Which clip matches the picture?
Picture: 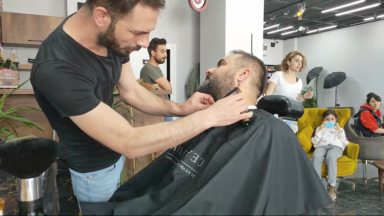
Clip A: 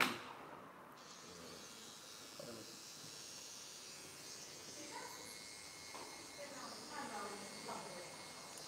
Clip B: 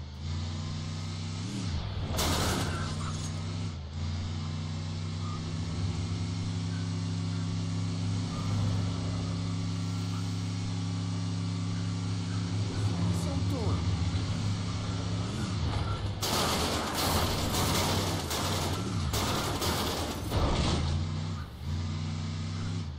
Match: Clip A